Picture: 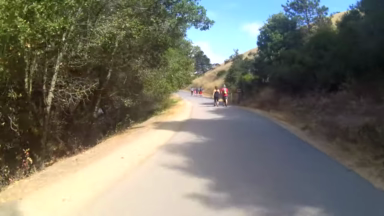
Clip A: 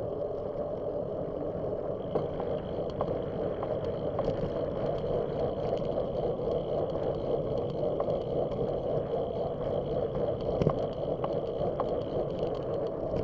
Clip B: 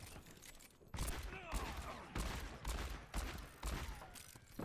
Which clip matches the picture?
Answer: A